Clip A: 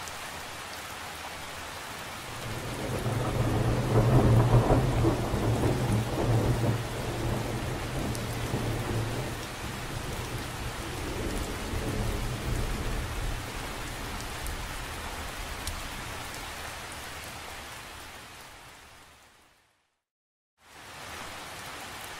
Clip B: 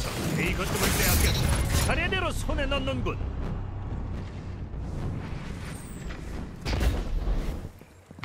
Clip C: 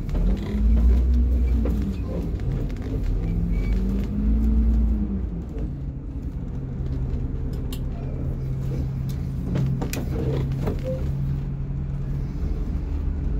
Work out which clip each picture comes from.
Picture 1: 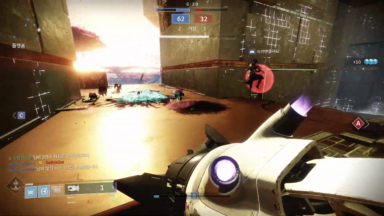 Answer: B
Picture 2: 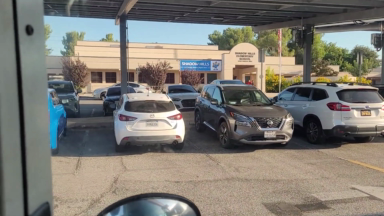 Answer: C